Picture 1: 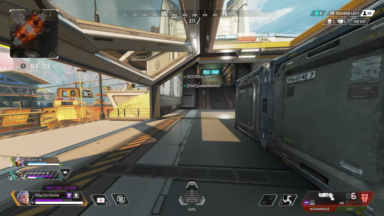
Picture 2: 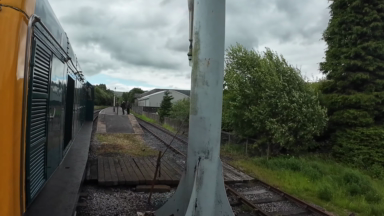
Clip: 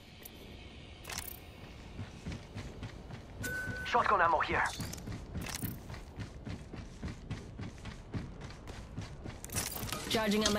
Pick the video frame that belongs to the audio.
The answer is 1